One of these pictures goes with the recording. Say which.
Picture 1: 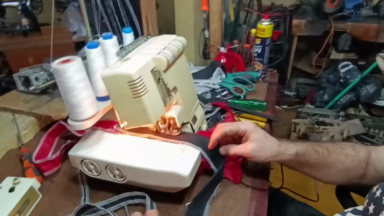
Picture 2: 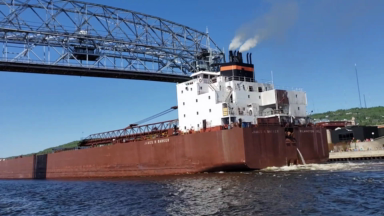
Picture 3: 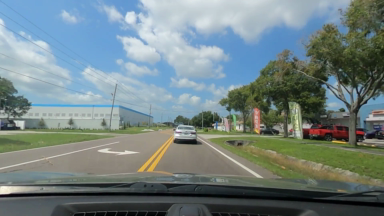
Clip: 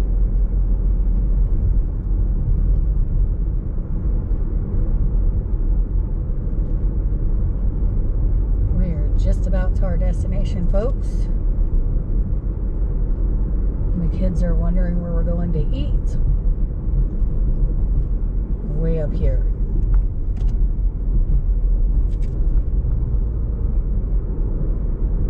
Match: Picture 3